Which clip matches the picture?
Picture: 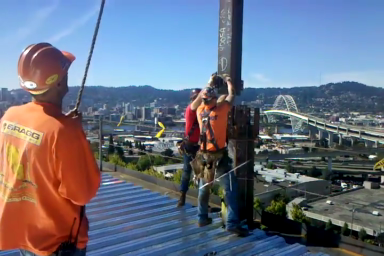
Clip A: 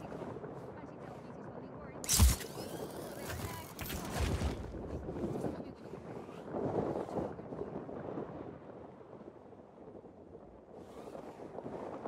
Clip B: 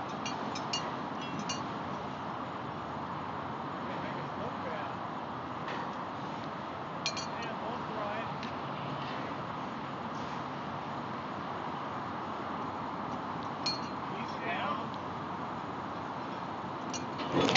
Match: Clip B